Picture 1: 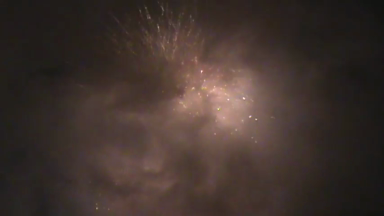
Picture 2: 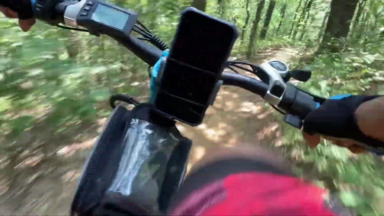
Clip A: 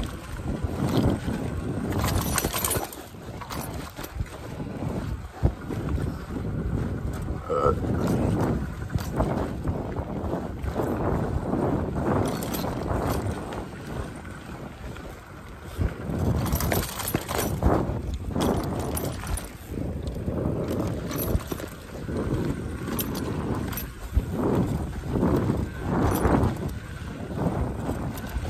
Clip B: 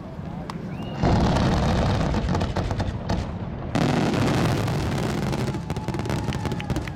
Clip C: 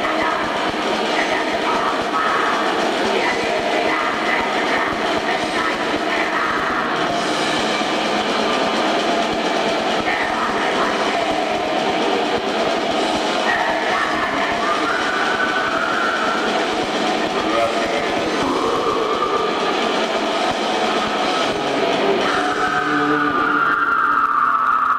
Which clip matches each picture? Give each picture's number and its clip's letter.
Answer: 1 B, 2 A